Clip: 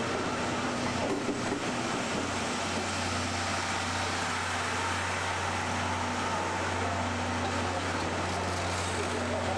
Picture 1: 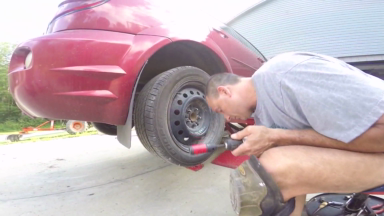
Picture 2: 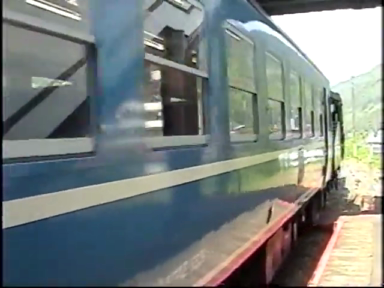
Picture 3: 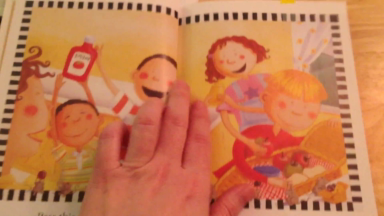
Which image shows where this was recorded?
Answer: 2